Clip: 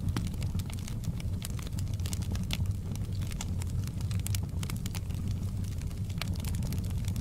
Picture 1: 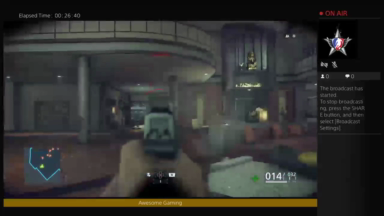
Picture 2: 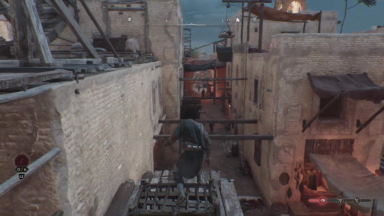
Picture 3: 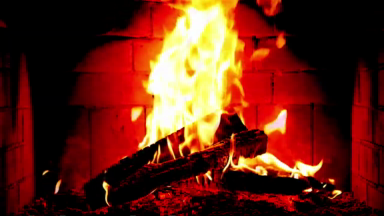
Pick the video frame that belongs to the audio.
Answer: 3